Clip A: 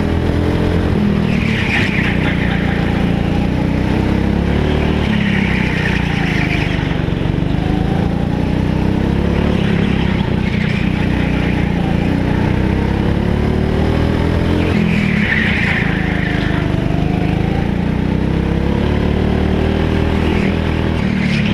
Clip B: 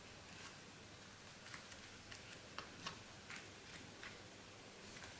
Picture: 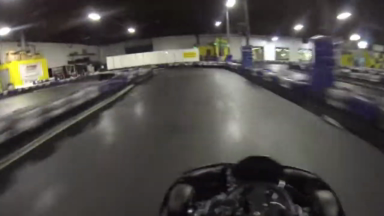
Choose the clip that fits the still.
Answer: A